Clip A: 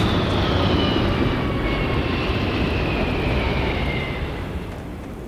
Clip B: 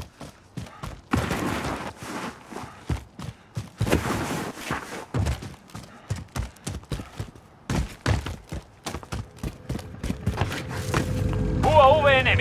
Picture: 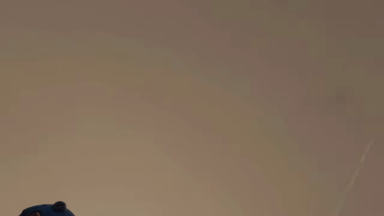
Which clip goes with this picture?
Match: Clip A